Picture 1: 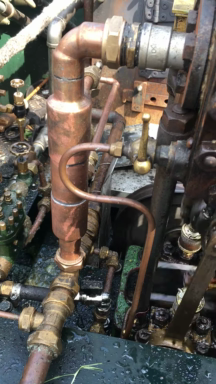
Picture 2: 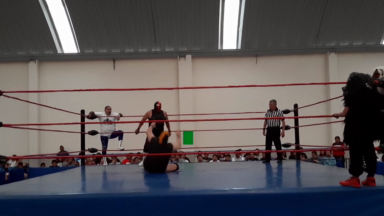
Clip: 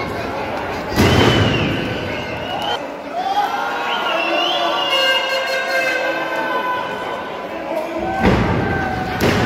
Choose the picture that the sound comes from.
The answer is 2